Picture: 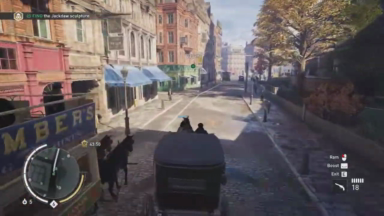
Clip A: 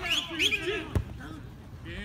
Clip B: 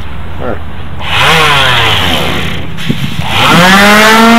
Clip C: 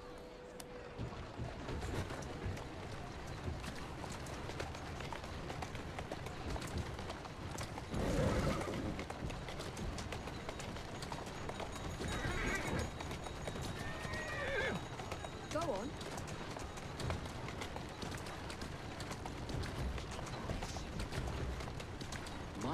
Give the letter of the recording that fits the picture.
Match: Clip C